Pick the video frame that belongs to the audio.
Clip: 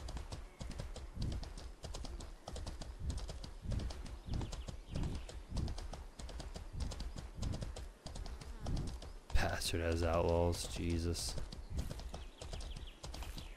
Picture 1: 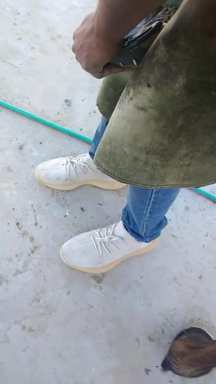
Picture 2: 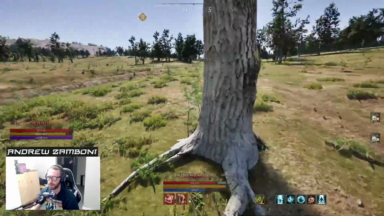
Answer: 2